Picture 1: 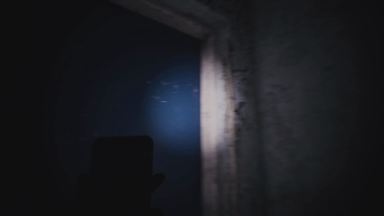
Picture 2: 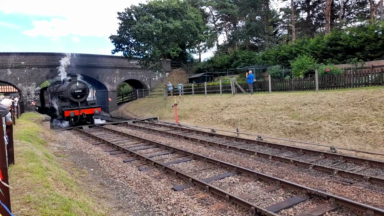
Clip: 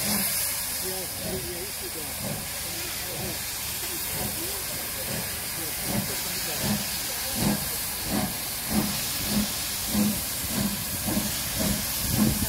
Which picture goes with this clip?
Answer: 2